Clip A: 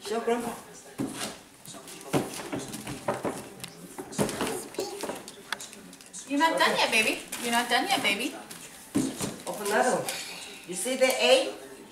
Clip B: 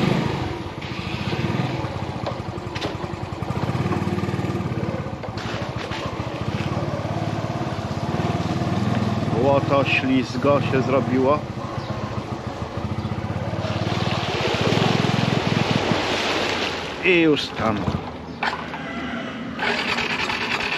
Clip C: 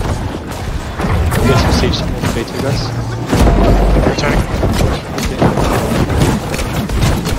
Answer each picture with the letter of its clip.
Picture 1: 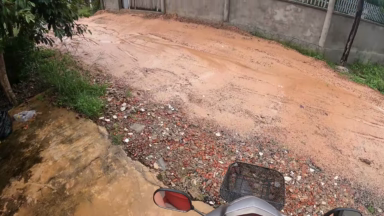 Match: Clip B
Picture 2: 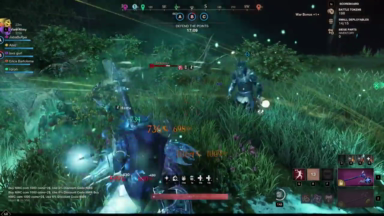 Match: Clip C